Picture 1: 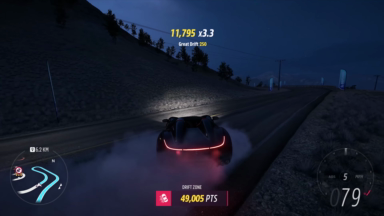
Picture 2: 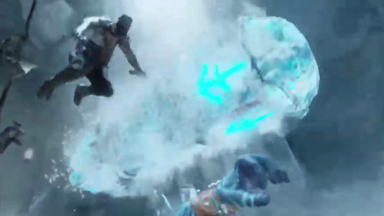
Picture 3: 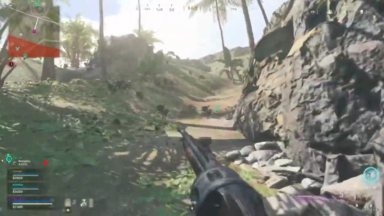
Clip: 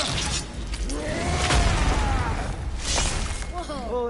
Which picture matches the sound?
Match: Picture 2